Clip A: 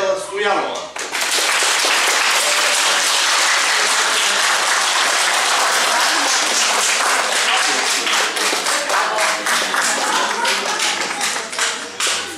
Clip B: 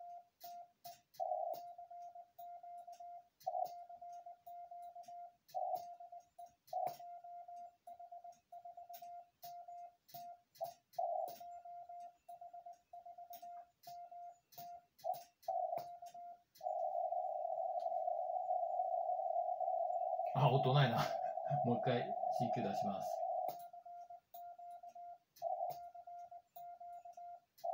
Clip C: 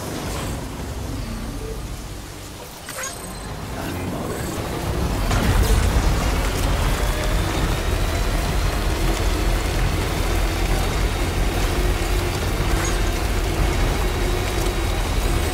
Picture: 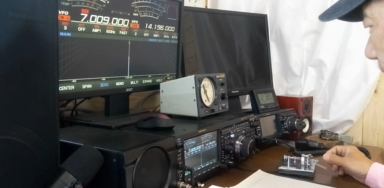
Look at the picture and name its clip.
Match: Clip B